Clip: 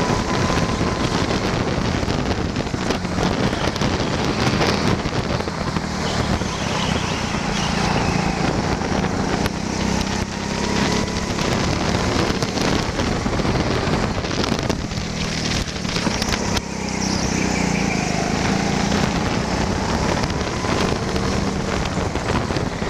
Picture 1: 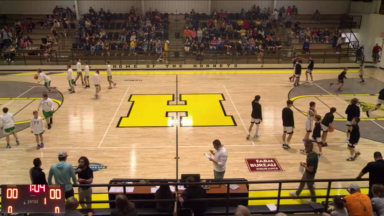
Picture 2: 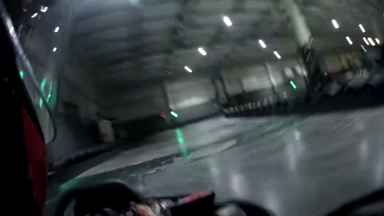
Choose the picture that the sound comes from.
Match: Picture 2